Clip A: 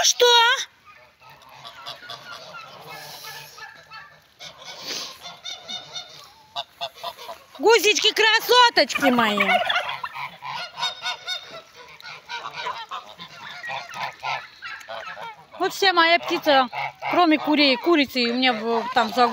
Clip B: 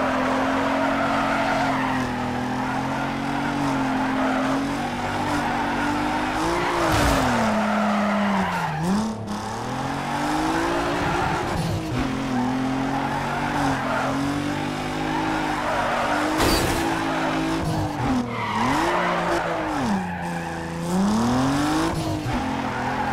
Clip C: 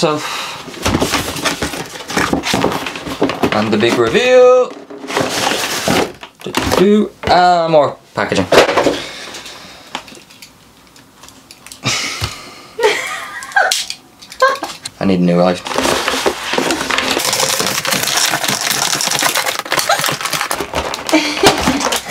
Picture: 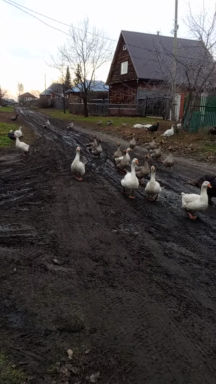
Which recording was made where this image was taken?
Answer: A